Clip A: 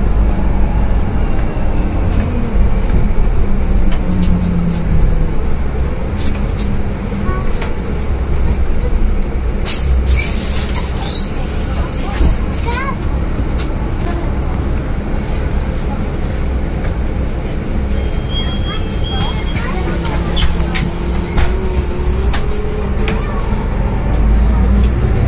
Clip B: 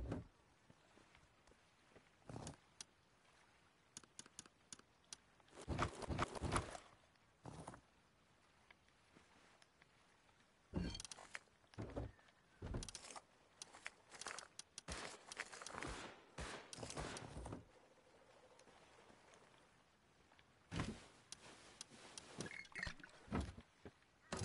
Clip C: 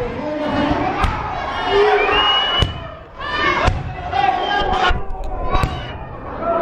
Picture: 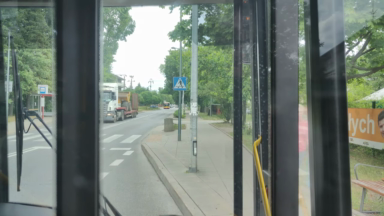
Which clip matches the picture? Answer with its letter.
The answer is A